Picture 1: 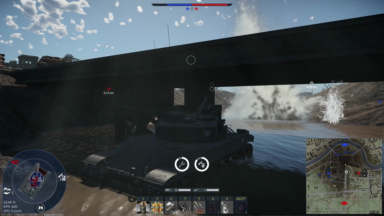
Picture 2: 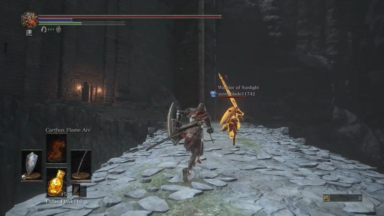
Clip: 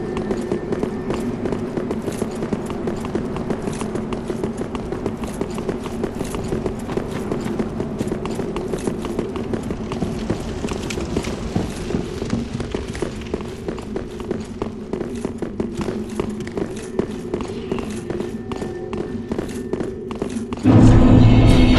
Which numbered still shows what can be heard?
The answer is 2